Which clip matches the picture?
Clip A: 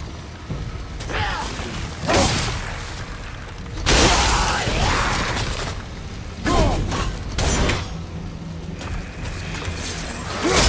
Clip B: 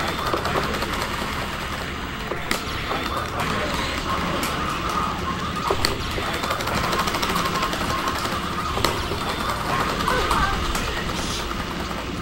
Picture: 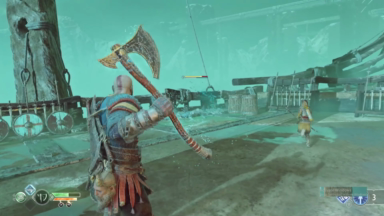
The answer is A